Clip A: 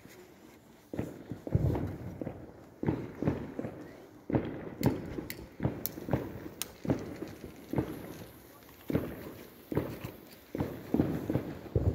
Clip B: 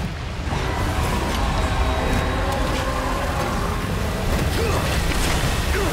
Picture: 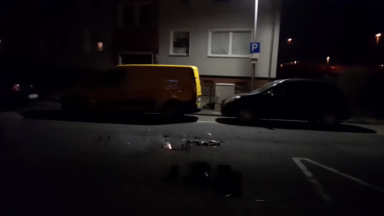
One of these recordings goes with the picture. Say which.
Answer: A